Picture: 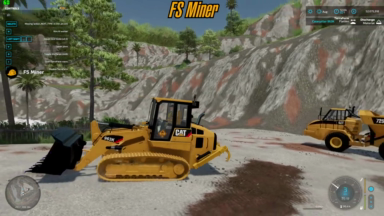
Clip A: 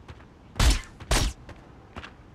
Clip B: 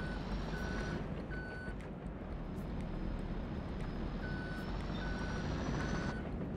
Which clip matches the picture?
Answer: B